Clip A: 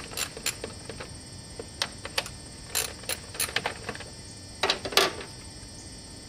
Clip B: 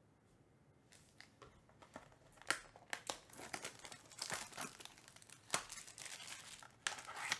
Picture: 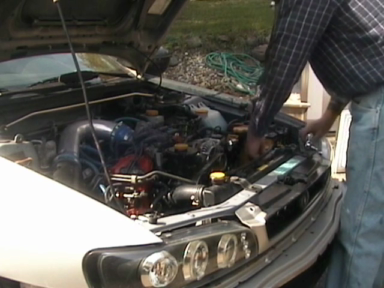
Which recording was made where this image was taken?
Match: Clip A